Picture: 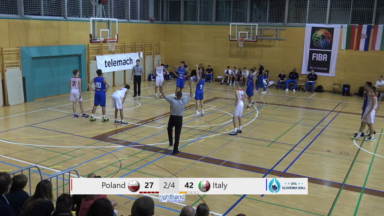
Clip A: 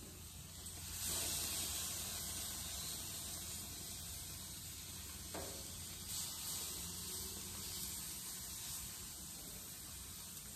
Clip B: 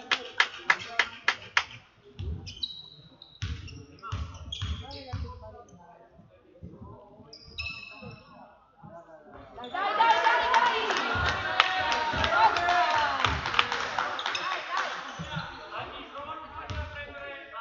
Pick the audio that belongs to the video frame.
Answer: B